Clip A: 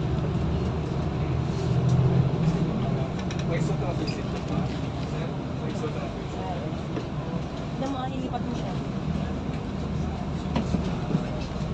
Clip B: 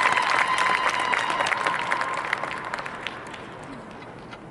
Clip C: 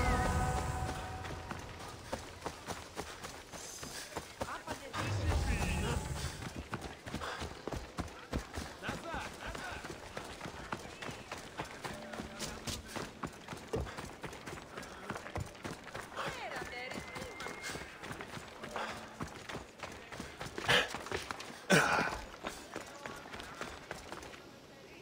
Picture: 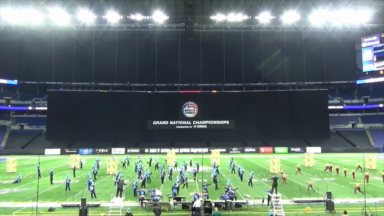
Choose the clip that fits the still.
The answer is B